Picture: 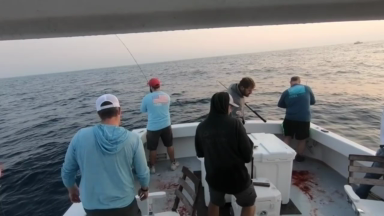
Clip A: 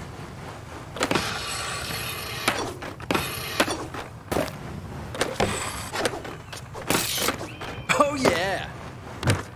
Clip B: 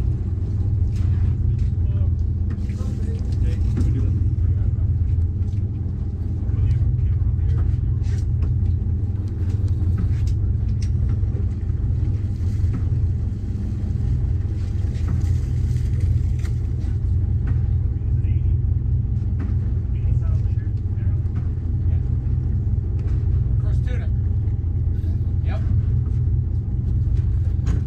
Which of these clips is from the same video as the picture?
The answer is B